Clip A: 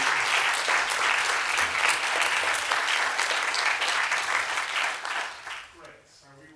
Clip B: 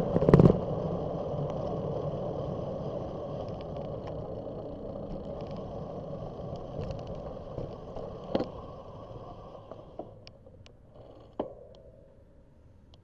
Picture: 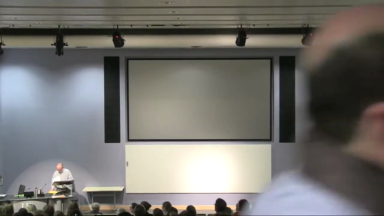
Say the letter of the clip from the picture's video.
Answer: A